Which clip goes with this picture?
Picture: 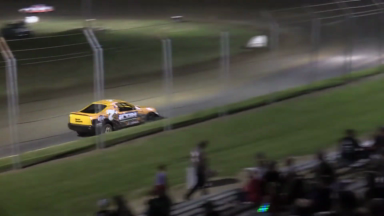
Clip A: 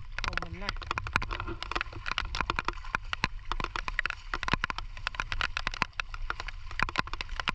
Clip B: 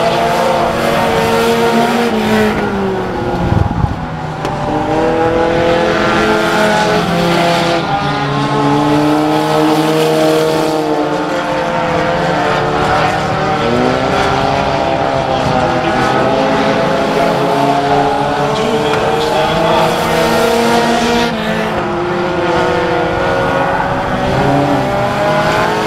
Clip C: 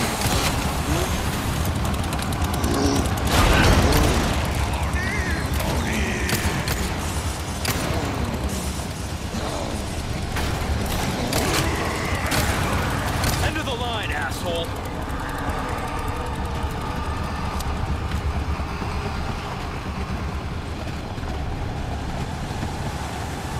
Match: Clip B